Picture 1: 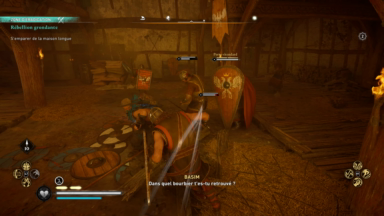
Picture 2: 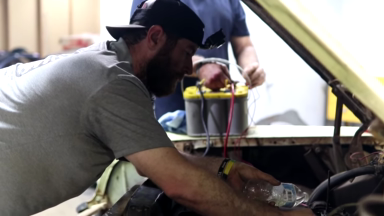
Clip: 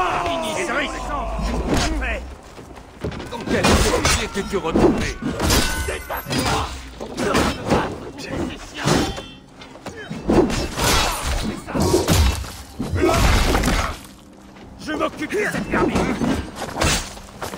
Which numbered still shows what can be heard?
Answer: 1